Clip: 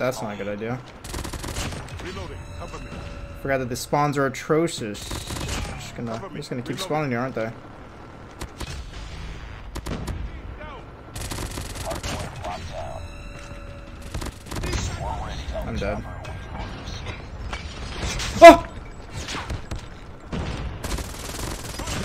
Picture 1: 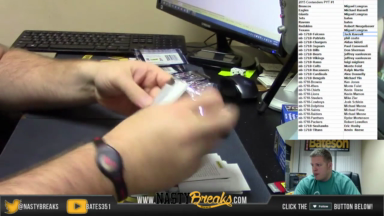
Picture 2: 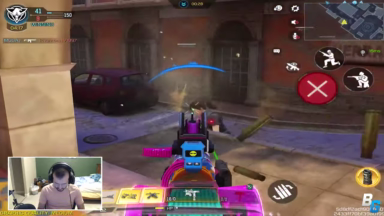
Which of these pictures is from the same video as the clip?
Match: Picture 2